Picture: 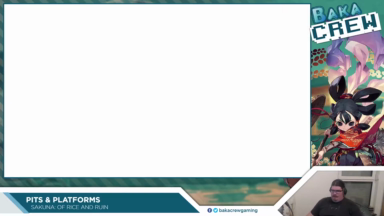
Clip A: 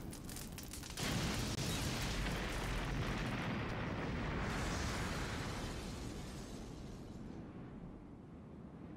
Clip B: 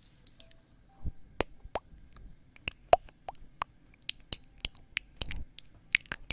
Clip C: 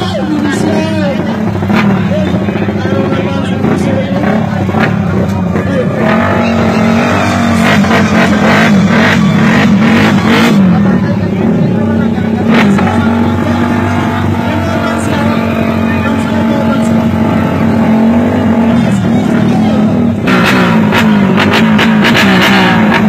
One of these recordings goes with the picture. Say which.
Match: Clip A